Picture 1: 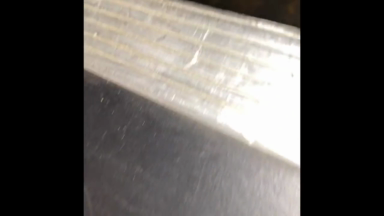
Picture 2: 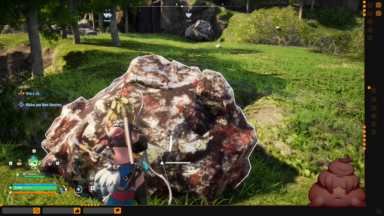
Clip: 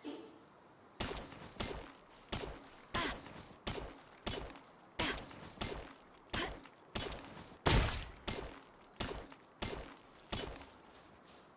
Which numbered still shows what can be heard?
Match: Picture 2